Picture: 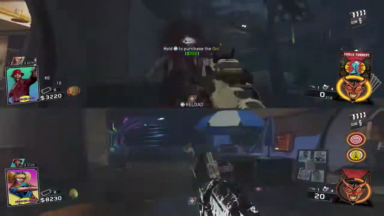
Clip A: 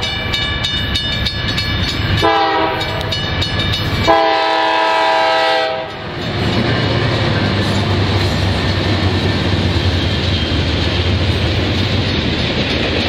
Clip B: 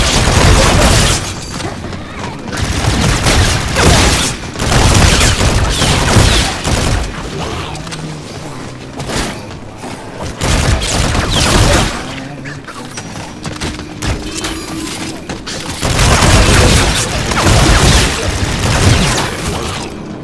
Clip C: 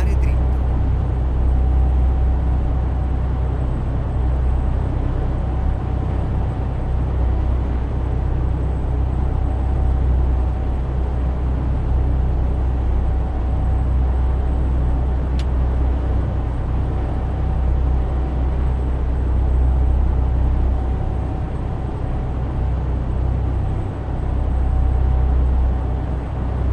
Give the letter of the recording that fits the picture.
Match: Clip B